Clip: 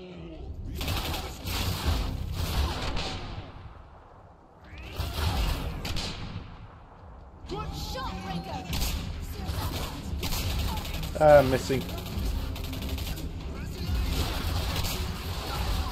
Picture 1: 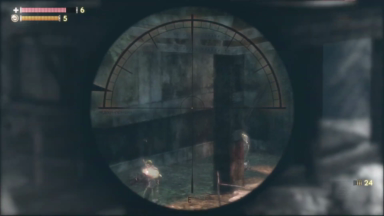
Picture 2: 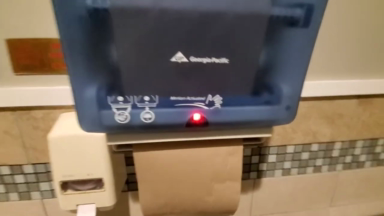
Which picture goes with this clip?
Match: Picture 1